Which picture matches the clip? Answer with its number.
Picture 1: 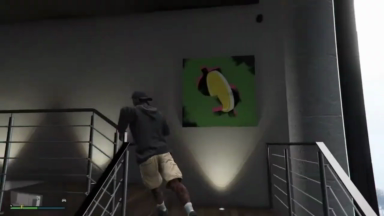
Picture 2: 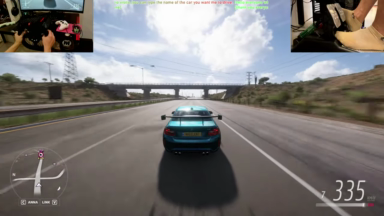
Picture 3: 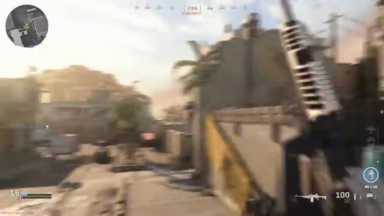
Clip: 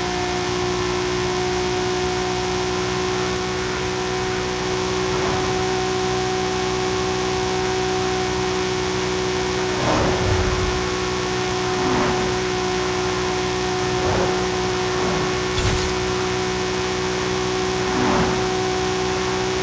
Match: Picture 2